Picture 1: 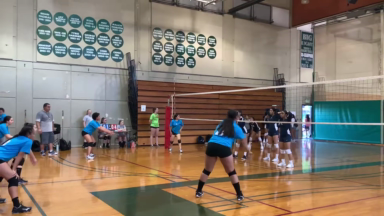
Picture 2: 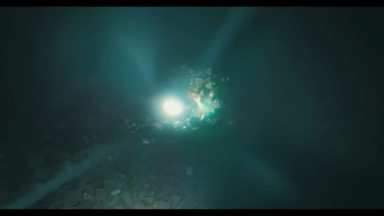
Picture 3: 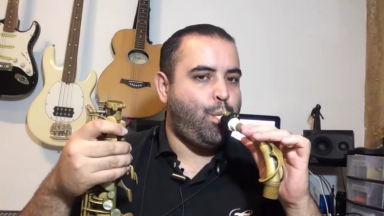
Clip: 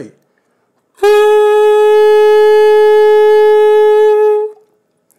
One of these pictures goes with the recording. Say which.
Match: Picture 3